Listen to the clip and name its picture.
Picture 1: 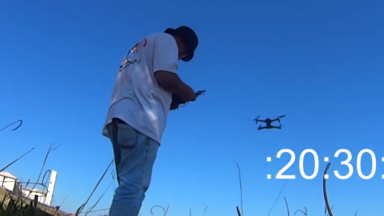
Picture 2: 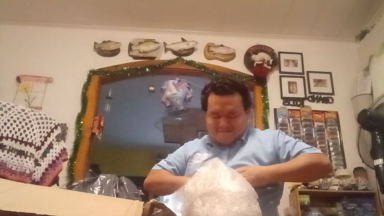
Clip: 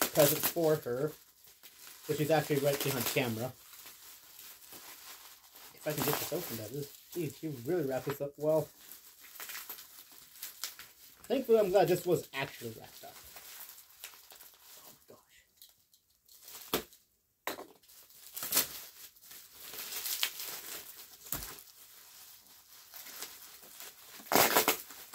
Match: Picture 2